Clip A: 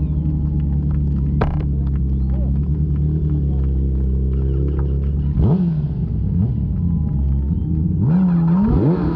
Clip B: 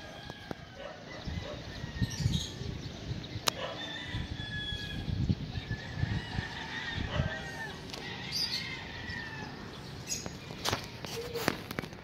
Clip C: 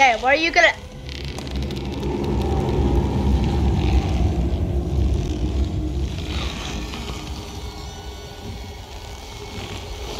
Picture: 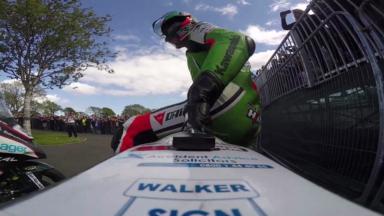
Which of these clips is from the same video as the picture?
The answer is A